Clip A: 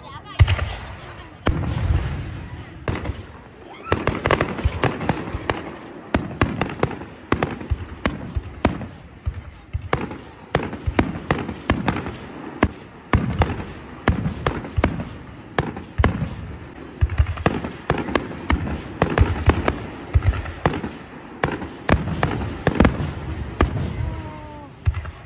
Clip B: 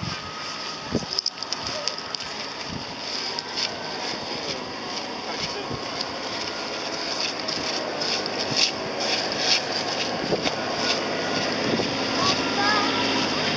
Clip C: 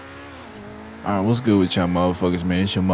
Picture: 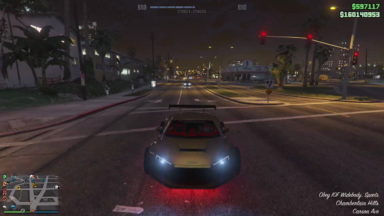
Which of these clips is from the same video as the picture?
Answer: C